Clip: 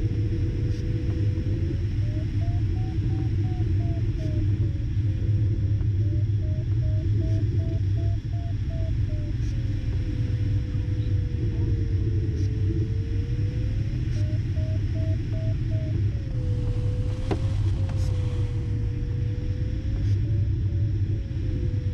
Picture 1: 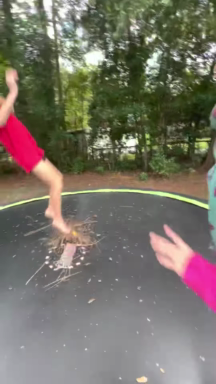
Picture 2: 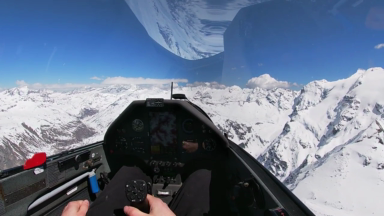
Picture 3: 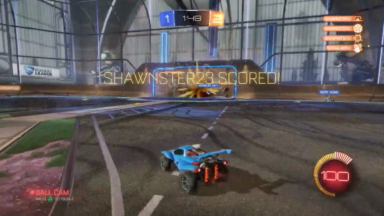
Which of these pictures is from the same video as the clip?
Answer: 2